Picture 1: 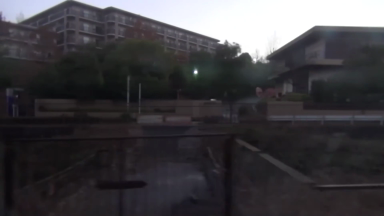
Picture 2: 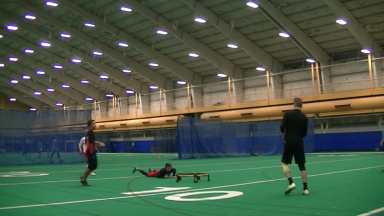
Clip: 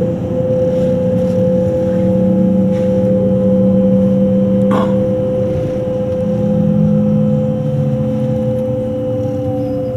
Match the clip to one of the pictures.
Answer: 1